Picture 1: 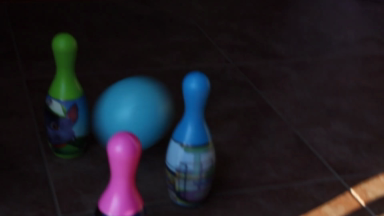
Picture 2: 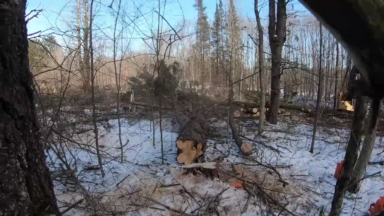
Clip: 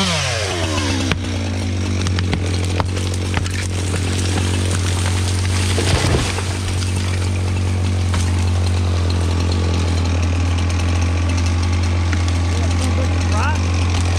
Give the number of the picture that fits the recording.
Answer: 2